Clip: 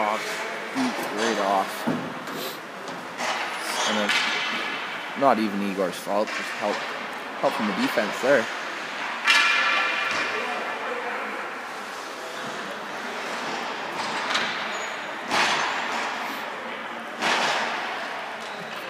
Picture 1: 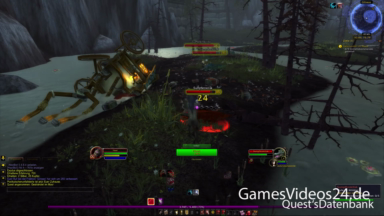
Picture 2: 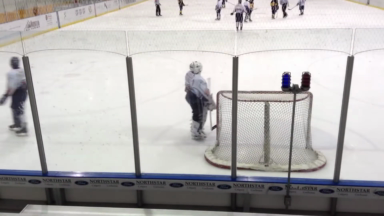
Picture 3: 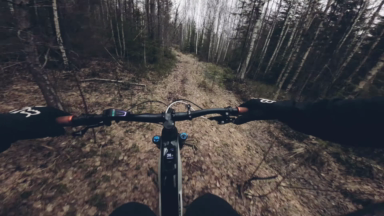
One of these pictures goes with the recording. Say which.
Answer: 2